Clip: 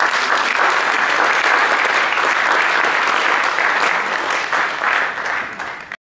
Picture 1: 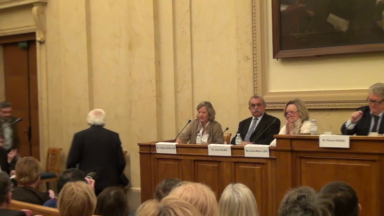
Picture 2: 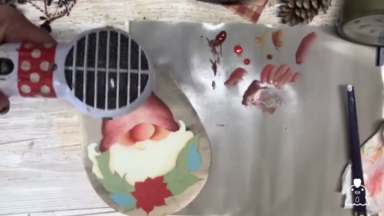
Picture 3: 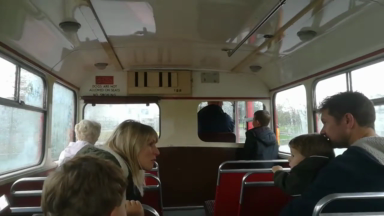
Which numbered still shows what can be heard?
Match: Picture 1